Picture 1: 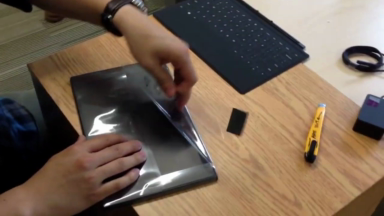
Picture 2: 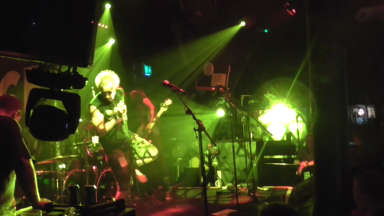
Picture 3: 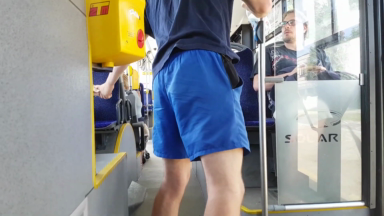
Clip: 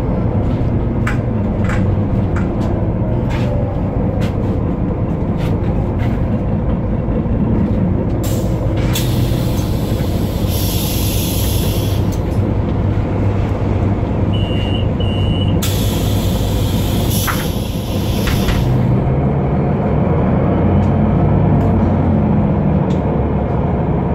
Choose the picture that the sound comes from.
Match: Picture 3